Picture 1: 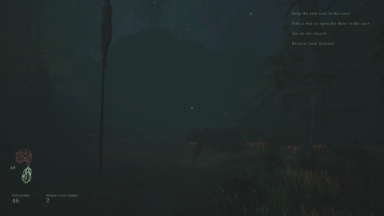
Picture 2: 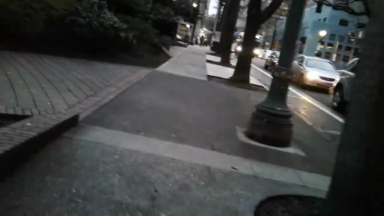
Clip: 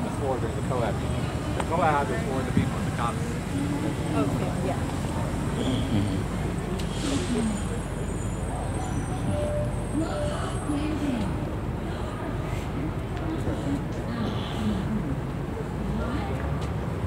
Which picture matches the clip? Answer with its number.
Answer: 2